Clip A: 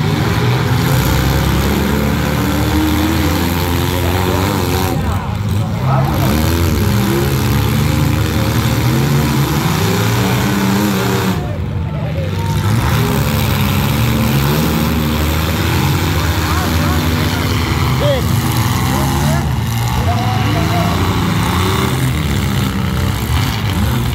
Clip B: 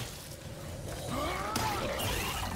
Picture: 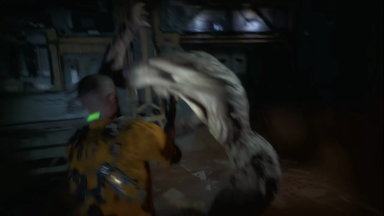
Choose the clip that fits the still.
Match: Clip B